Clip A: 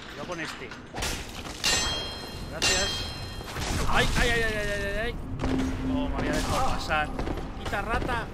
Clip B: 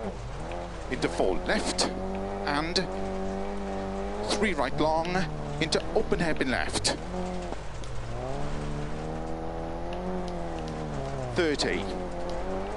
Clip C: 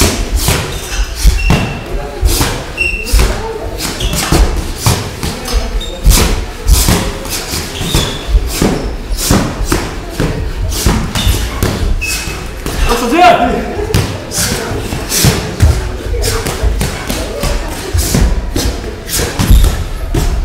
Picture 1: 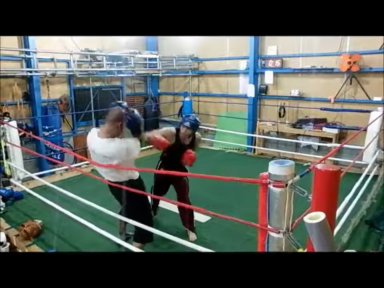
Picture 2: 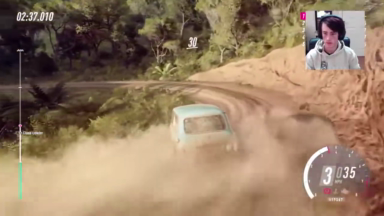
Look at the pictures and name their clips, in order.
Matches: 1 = C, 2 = B